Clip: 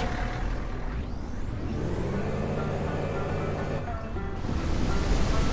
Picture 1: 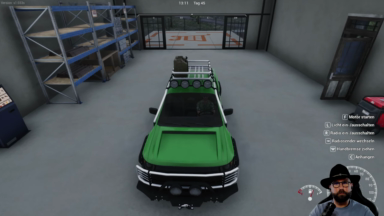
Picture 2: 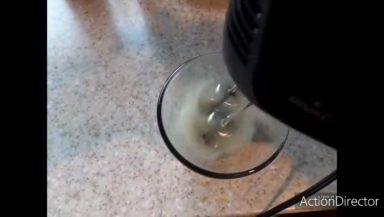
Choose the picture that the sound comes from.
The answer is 1